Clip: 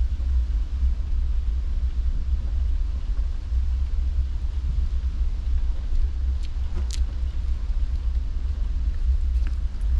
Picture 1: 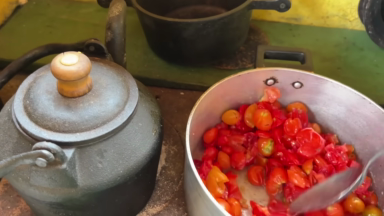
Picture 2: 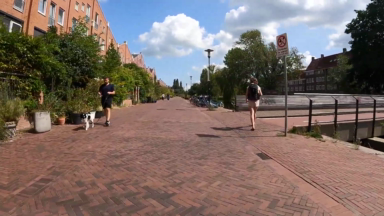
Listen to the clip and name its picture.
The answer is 2